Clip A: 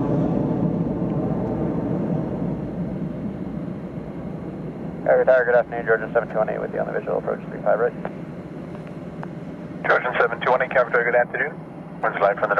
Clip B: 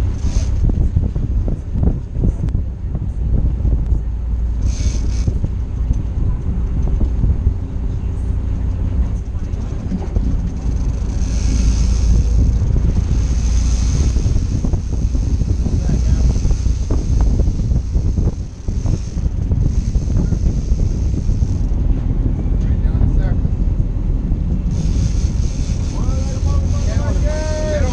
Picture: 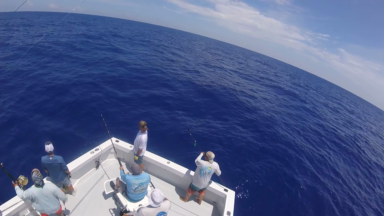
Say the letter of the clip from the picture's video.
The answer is B